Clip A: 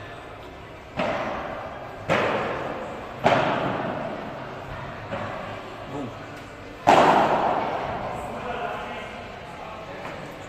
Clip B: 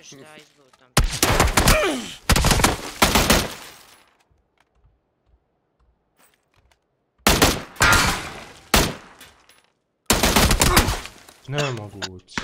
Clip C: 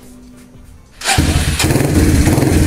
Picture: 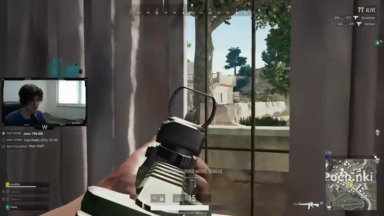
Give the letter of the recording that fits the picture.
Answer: B